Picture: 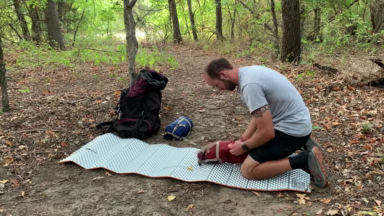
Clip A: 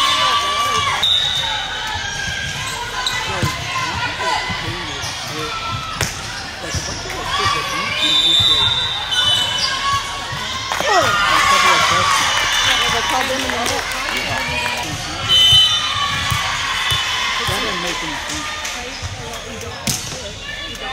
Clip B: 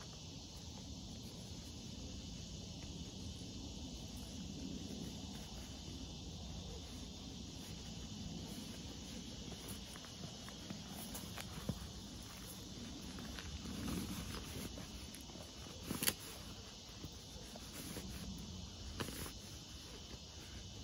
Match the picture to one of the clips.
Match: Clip B